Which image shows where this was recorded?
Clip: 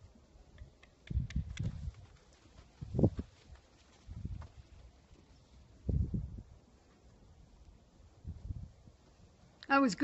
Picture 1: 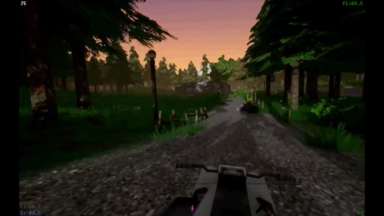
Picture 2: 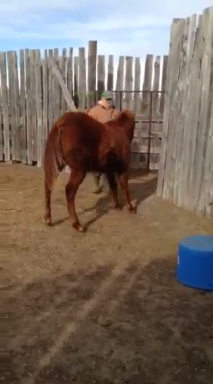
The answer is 2